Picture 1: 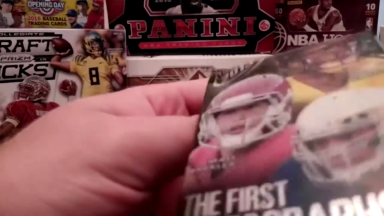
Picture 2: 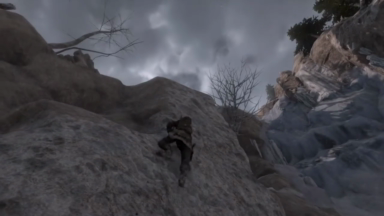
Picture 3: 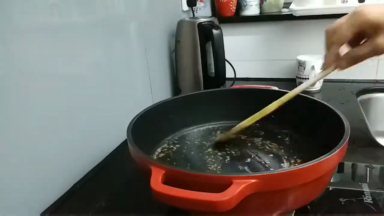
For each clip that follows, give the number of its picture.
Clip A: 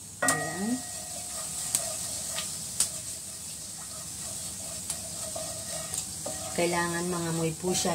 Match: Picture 3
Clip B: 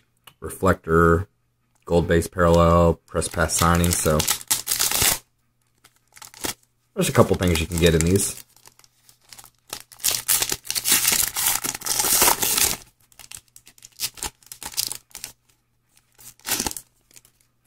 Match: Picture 1